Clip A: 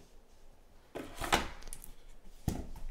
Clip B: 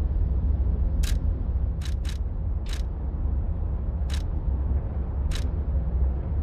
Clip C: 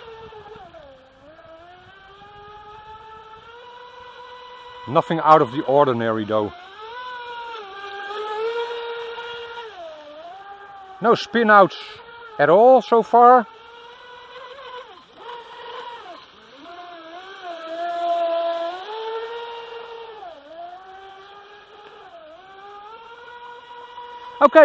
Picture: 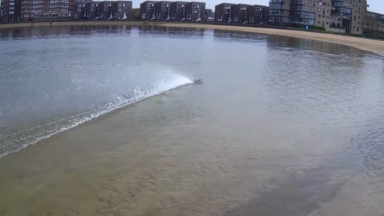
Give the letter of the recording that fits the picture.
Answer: C